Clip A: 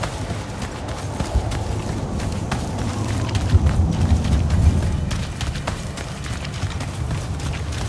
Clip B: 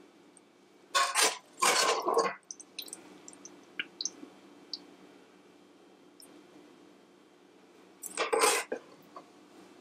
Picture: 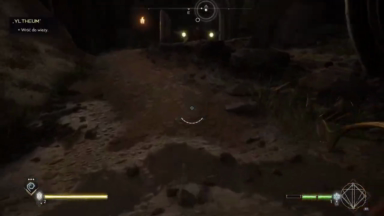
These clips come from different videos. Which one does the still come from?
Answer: A